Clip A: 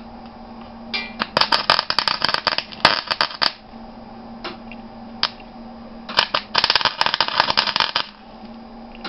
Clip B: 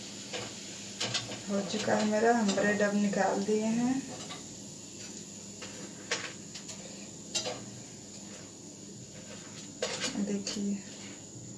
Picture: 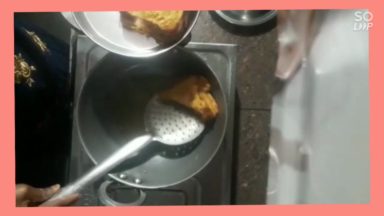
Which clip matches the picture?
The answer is B